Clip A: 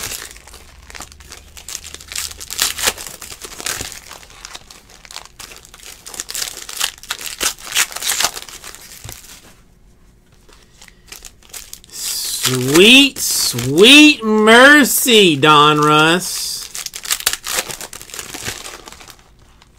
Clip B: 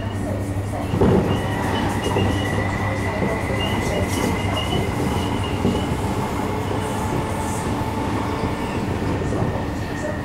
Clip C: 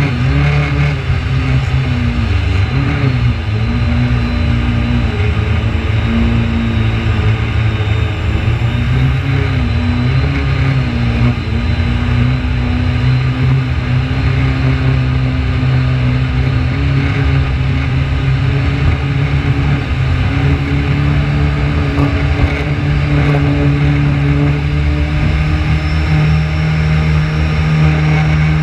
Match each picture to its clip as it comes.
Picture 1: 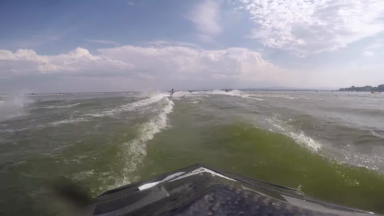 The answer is C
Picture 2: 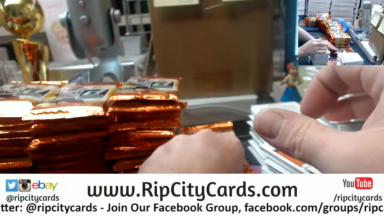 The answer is A